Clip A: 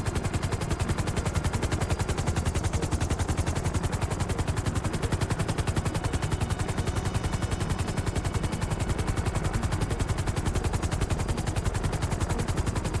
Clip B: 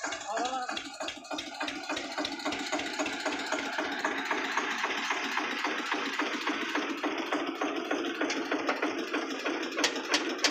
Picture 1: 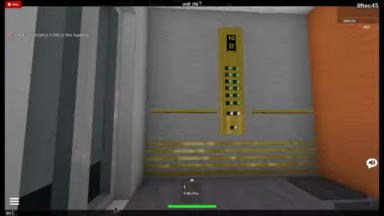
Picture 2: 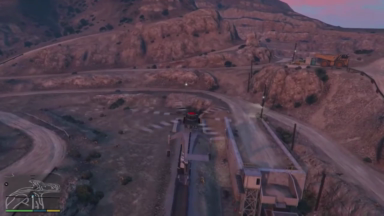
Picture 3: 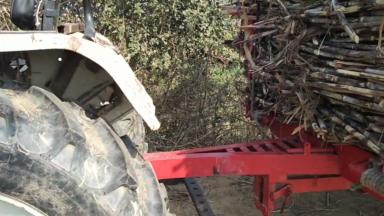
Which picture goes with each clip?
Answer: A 2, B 3